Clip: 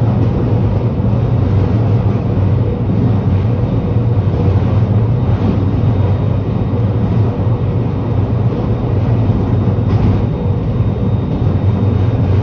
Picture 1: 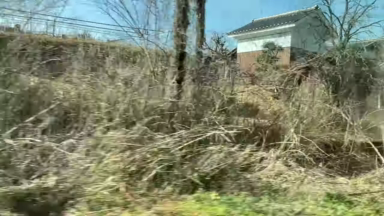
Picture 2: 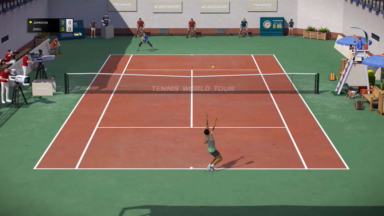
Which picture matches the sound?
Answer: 1